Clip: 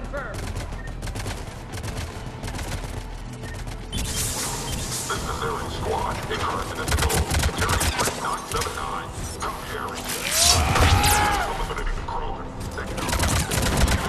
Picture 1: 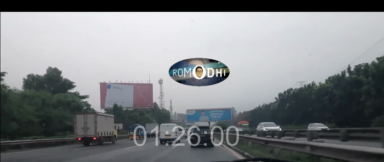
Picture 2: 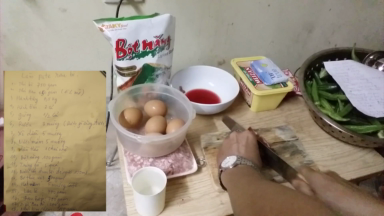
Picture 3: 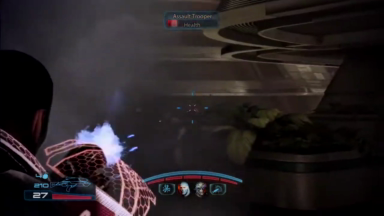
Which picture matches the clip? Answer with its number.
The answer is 3